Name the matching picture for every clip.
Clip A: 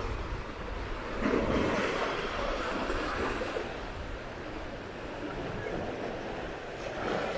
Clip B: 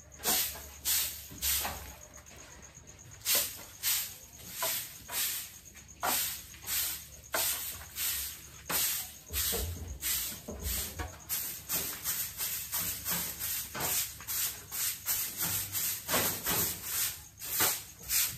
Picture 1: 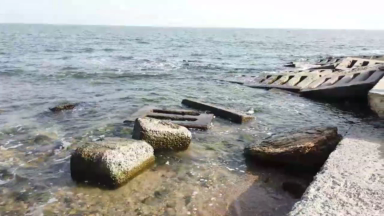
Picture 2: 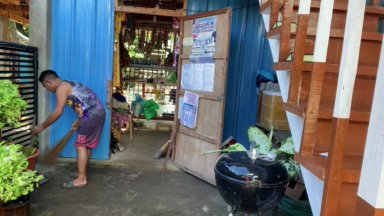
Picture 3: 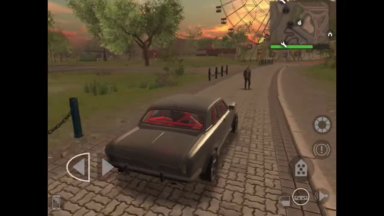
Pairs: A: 1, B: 2